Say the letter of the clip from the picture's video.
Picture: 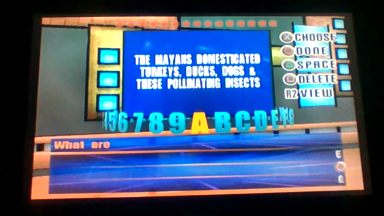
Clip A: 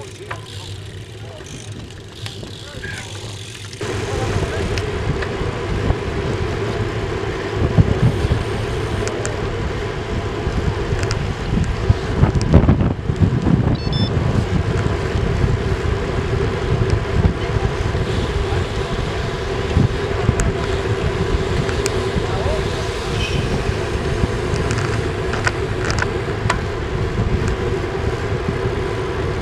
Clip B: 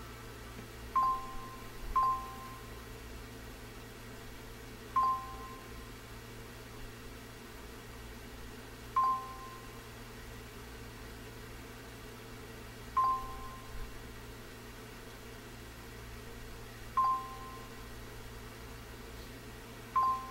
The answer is B